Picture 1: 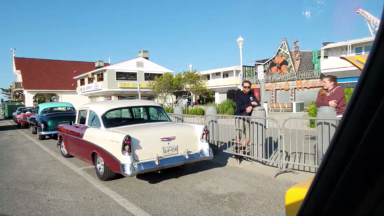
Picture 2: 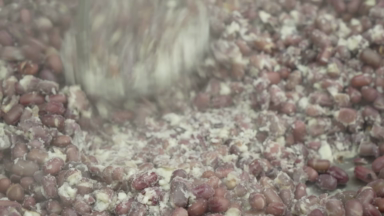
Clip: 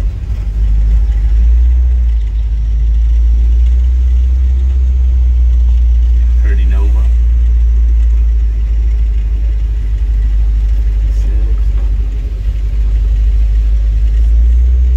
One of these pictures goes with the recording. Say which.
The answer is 1